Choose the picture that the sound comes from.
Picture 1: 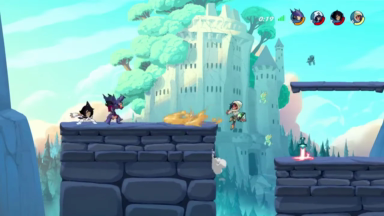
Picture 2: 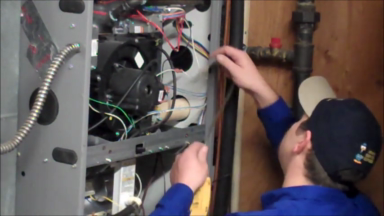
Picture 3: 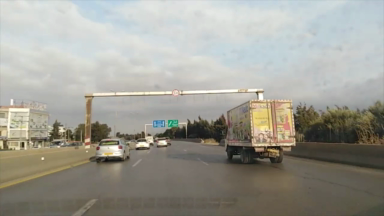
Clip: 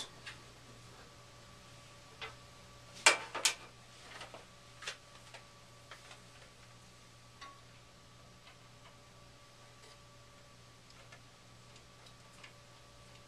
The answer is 2